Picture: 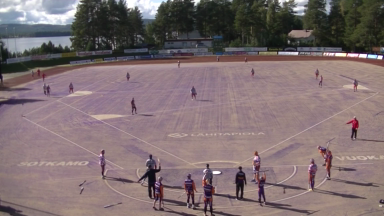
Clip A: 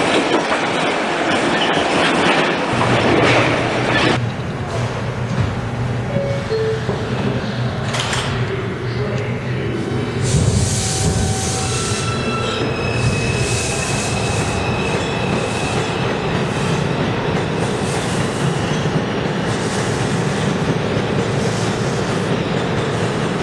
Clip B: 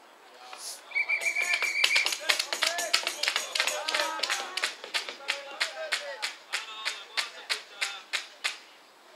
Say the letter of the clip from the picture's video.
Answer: B